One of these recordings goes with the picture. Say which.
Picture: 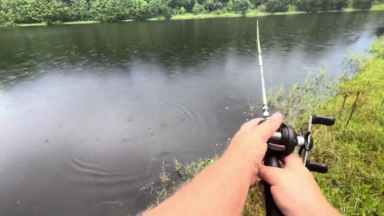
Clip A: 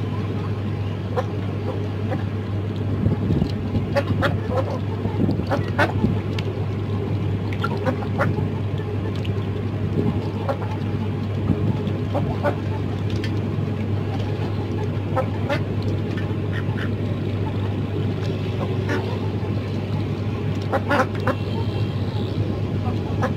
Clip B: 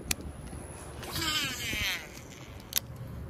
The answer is B